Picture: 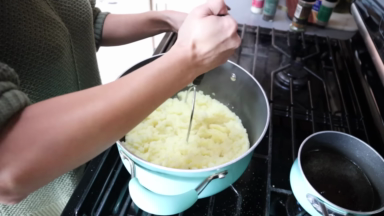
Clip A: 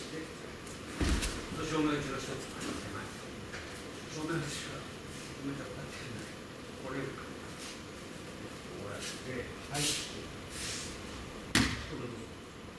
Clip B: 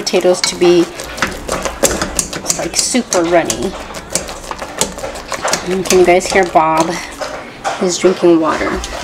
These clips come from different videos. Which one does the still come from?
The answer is B